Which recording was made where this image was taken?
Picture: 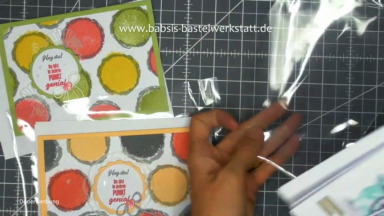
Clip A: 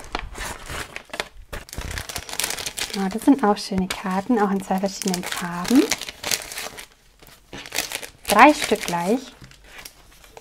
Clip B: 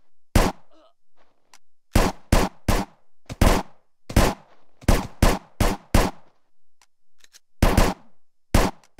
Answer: A